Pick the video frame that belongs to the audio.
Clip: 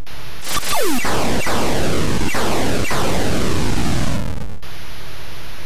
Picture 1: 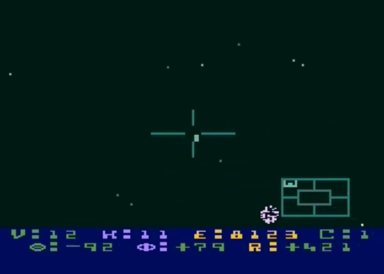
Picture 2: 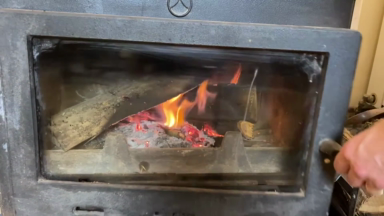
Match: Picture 1